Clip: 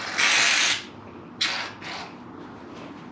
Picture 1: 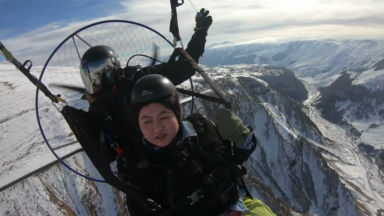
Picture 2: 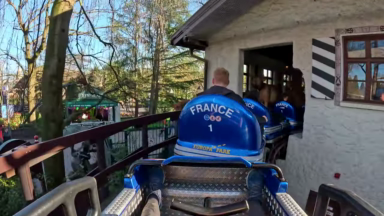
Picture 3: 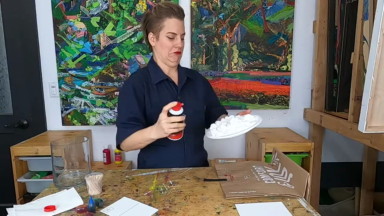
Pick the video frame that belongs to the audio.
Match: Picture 3